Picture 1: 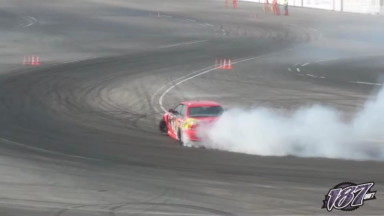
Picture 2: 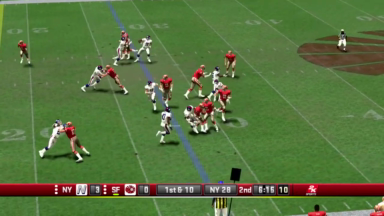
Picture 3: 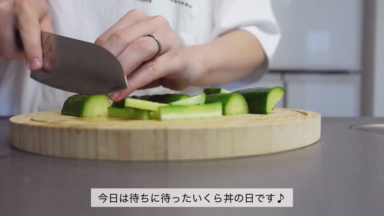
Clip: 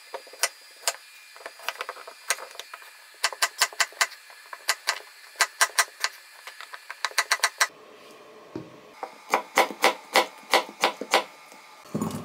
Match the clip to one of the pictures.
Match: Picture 3